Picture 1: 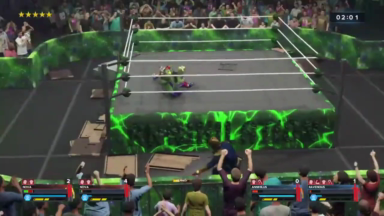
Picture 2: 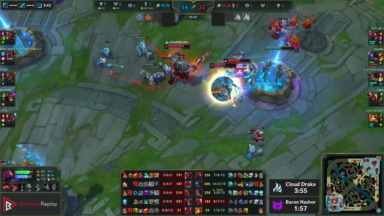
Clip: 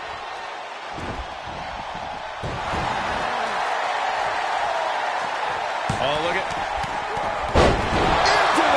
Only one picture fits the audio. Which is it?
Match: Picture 1